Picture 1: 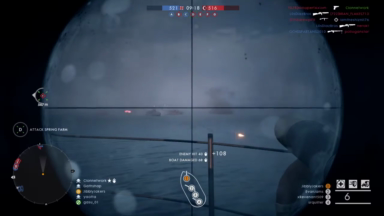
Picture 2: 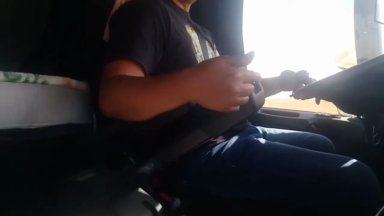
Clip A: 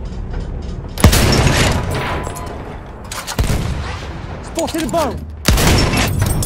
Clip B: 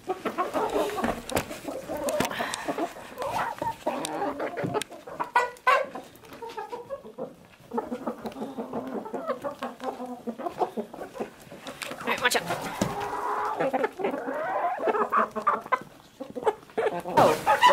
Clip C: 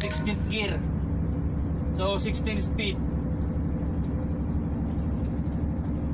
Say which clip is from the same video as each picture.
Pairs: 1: A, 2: C